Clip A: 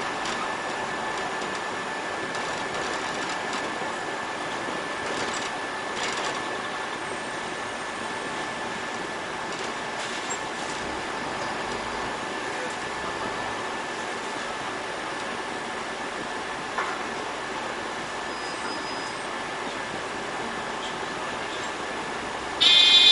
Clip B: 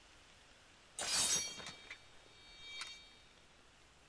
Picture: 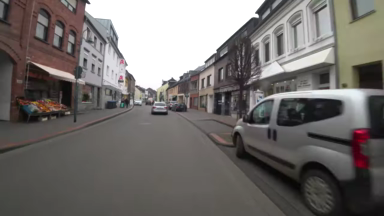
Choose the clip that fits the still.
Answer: A